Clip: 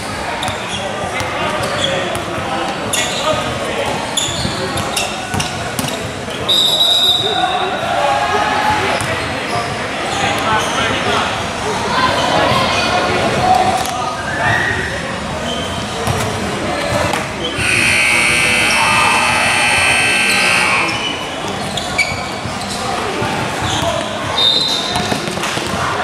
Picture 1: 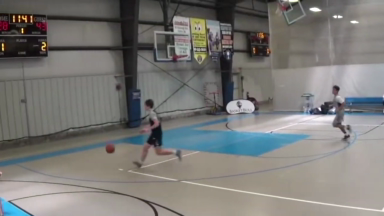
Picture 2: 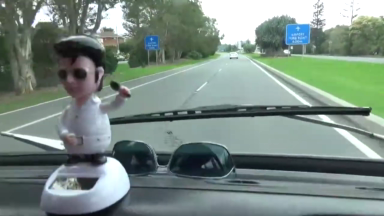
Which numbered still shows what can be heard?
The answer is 1